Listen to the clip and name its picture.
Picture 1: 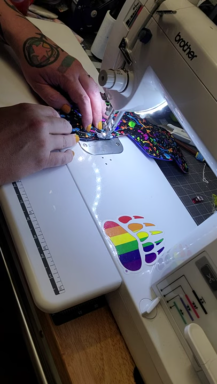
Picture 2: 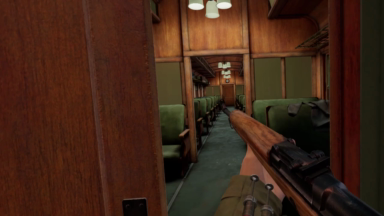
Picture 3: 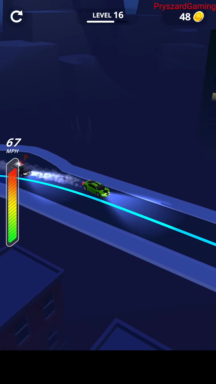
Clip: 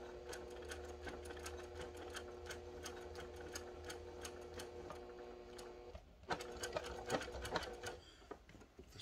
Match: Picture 1